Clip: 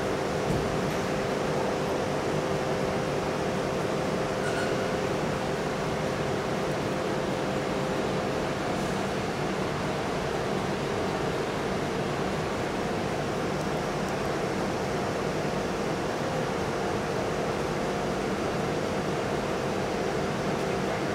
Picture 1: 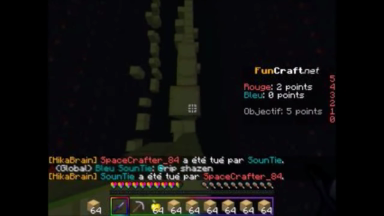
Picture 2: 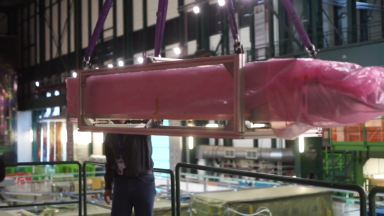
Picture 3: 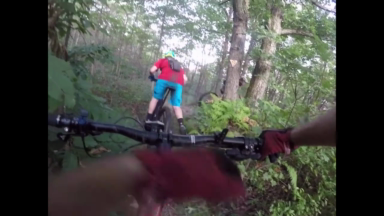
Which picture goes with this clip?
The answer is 2